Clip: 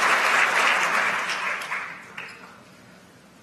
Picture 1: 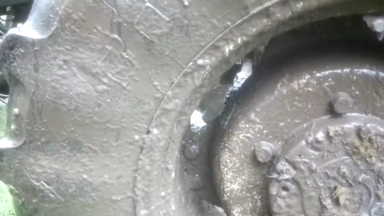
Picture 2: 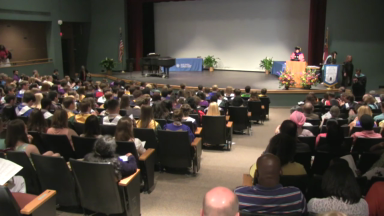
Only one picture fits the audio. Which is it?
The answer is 2